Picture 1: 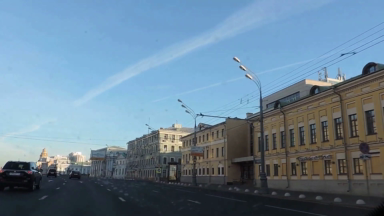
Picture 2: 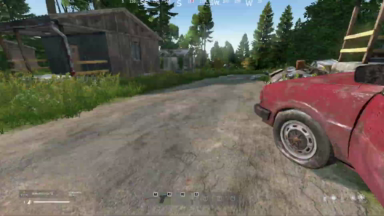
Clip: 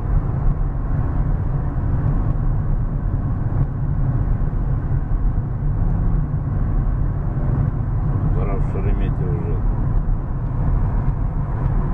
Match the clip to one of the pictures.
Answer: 1